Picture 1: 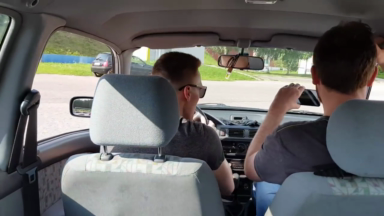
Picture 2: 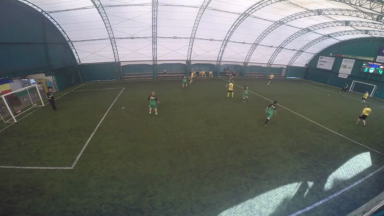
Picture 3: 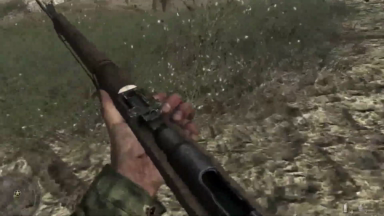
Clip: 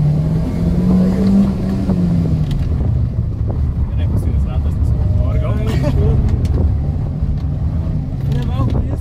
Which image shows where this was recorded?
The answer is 1